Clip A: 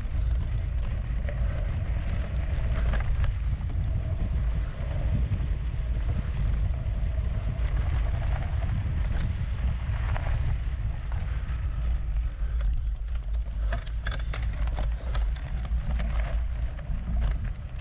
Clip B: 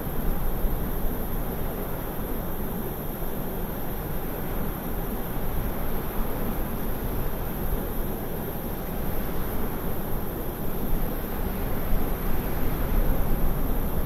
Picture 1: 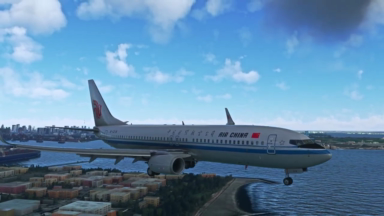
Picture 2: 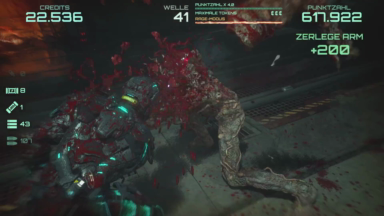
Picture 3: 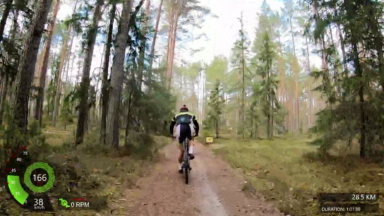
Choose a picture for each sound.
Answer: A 3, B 1